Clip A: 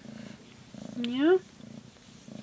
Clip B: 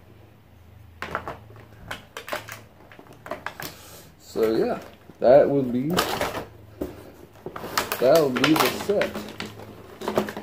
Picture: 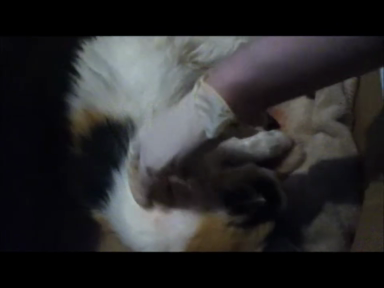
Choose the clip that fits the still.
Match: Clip A